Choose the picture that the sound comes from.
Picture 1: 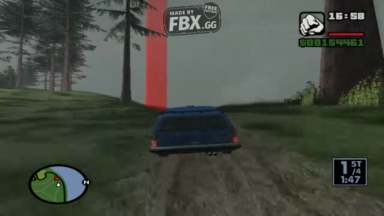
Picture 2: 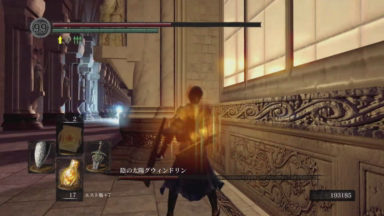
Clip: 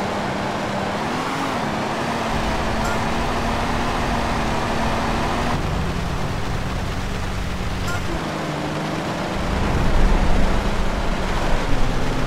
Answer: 1